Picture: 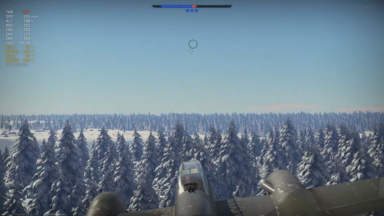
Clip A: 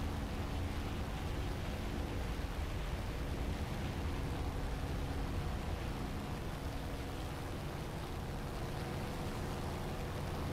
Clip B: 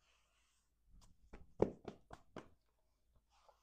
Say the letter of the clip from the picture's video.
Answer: A